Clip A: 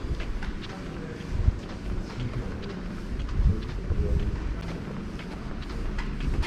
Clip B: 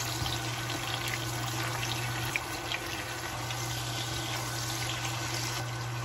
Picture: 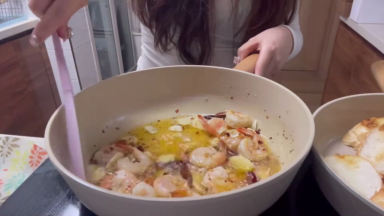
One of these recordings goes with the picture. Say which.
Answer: B